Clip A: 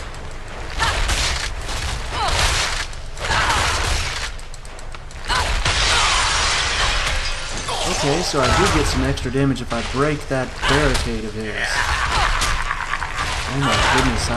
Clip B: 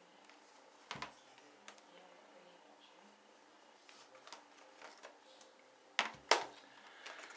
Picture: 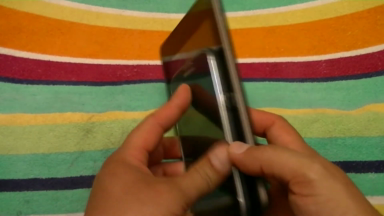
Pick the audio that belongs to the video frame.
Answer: B